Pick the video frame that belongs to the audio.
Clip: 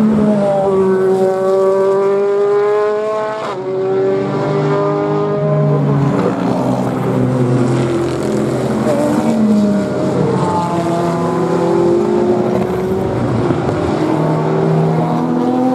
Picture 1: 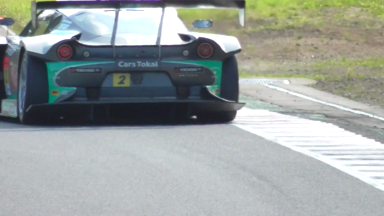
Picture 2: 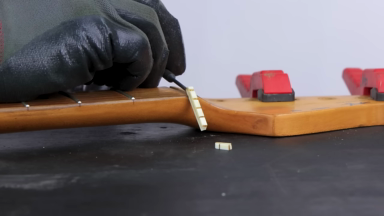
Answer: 1